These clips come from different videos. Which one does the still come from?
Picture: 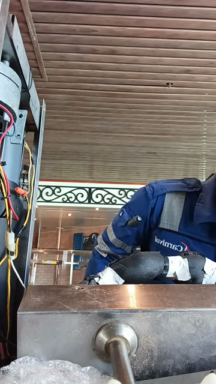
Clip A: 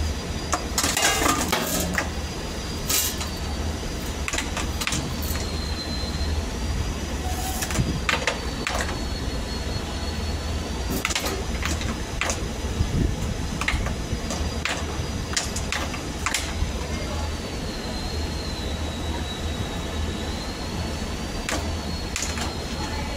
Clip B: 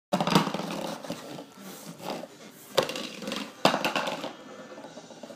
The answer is A